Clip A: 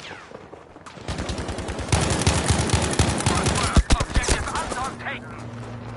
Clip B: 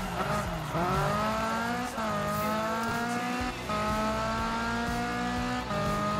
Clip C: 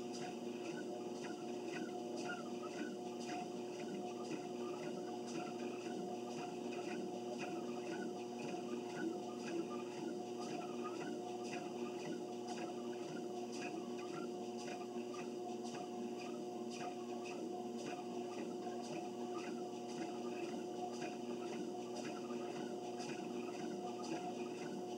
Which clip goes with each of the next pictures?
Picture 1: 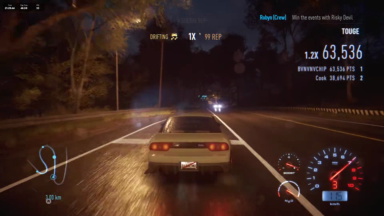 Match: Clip B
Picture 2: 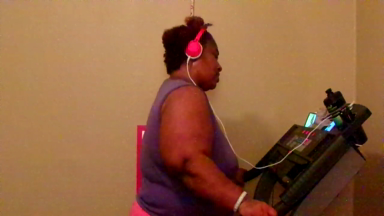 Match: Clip C